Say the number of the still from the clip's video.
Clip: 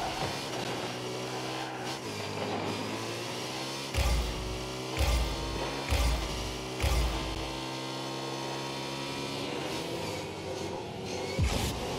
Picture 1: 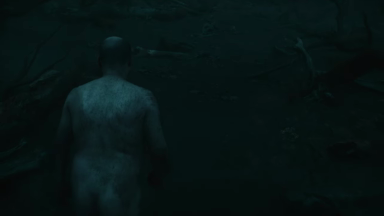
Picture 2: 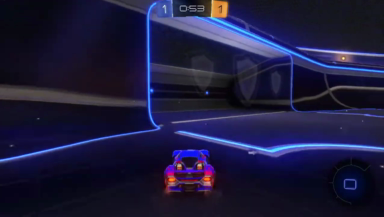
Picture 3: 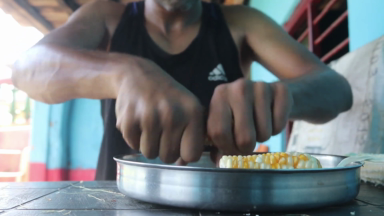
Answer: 2